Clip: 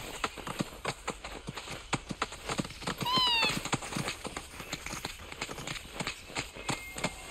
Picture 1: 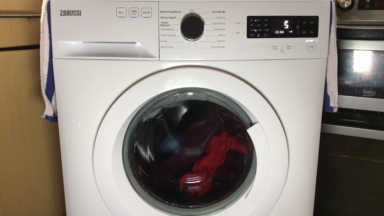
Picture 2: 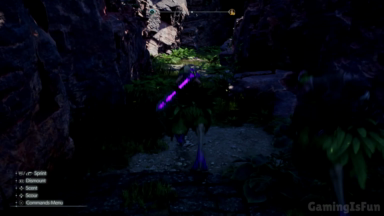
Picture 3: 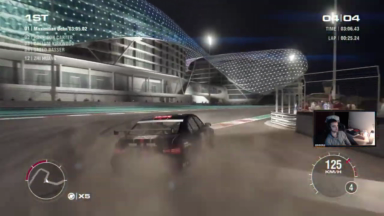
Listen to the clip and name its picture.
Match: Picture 2